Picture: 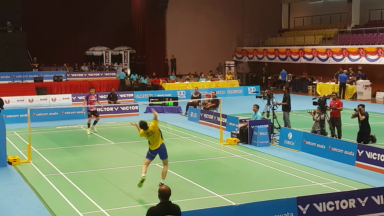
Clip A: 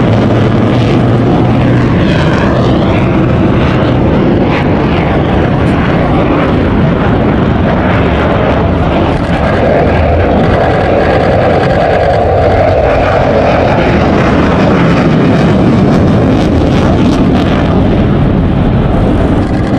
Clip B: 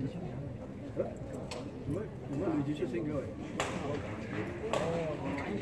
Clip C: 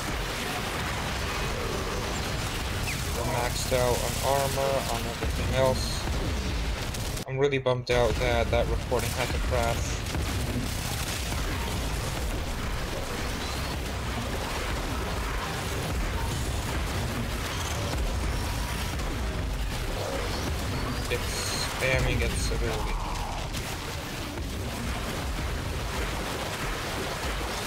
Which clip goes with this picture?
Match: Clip B